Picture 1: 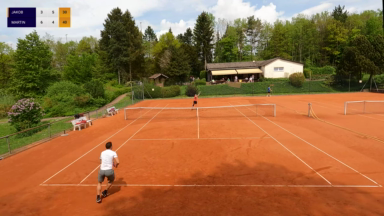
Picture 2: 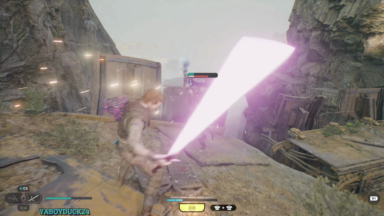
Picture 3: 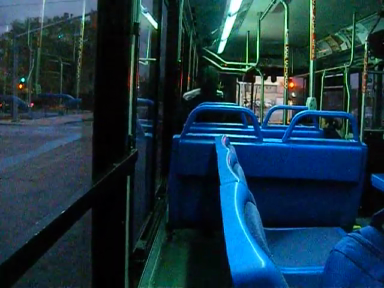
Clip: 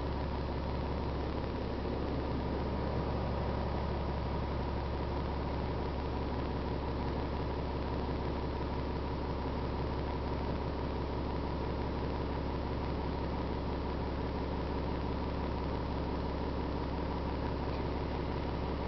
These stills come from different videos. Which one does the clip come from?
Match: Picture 3